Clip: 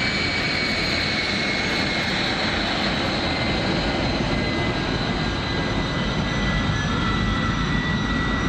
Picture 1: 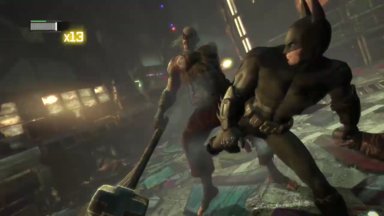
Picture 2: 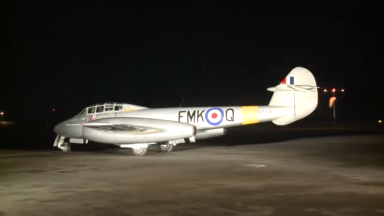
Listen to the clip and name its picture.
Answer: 2